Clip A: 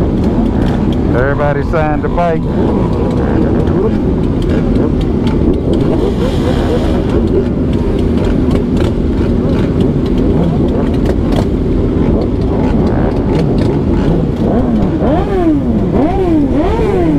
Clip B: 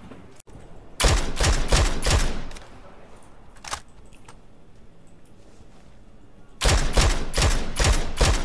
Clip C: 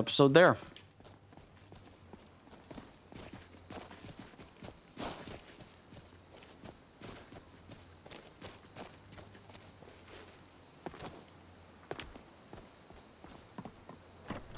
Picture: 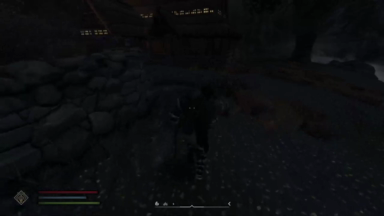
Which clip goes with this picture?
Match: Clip C